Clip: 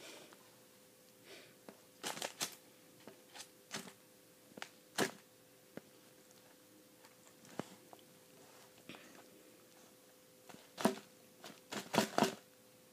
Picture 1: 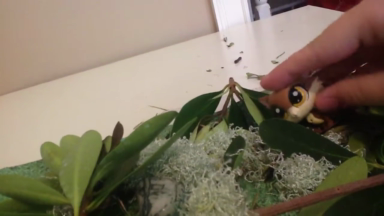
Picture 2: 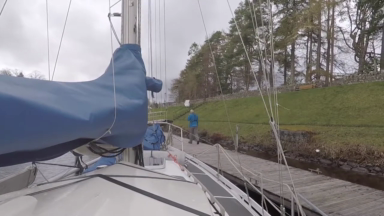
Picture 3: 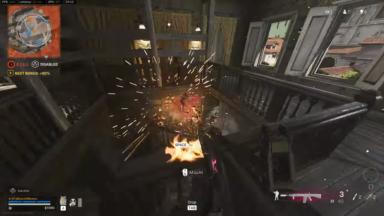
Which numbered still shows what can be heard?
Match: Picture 1